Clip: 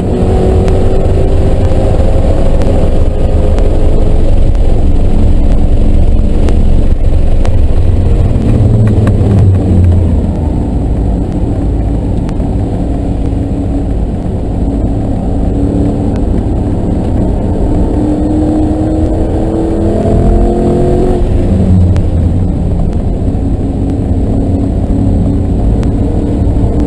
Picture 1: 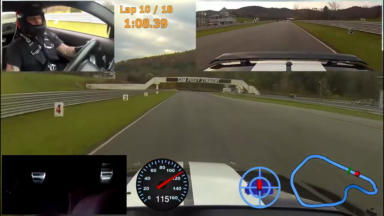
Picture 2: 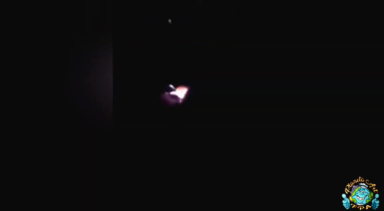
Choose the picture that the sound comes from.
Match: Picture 1